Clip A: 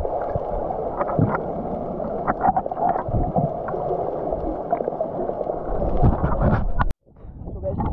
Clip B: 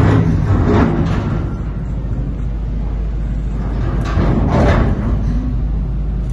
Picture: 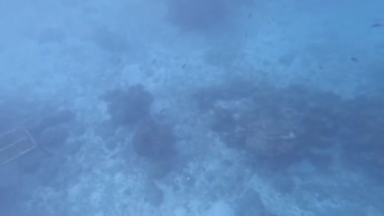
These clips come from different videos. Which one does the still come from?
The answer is A